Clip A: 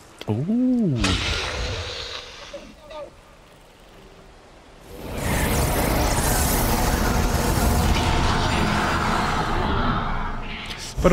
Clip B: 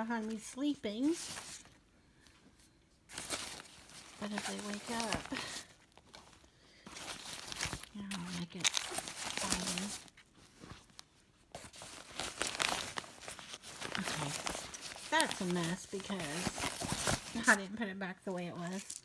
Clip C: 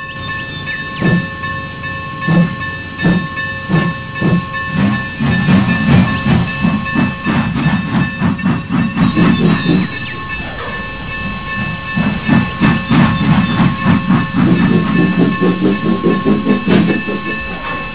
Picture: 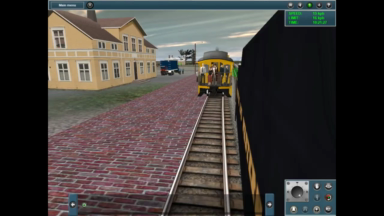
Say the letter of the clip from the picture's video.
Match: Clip C